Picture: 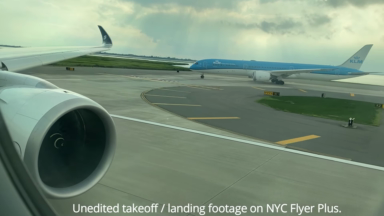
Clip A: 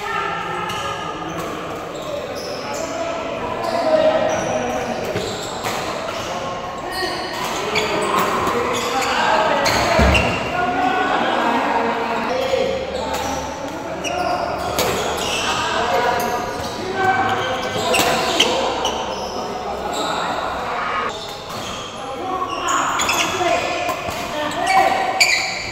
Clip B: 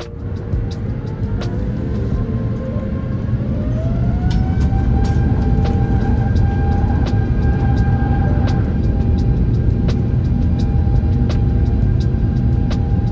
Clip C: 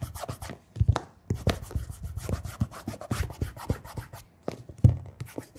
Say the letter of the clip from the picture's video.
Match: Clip B